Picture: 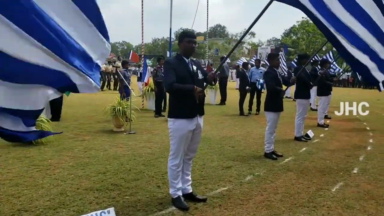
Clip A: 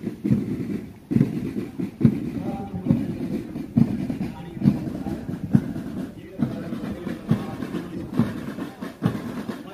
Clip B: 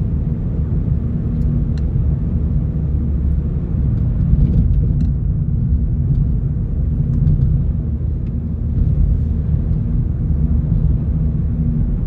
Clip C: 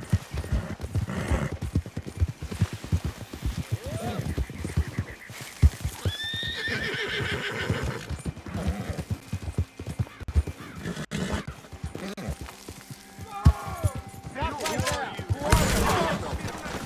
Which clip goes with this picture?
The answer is A